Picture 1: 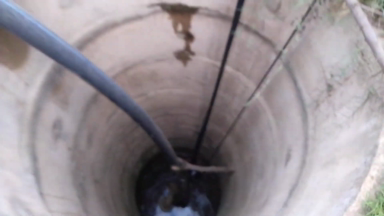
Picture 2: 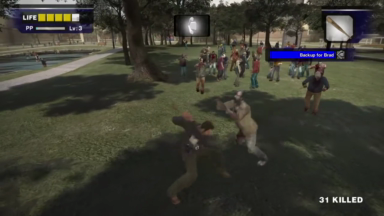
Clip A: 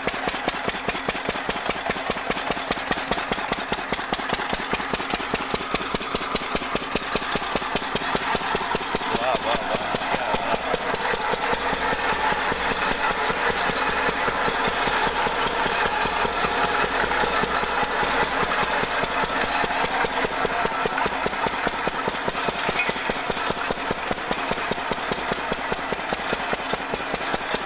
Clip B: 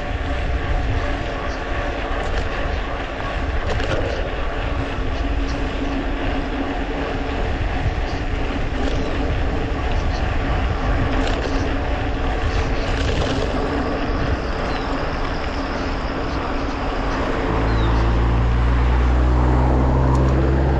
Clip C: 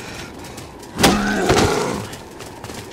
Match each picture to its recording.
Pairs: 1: A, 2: C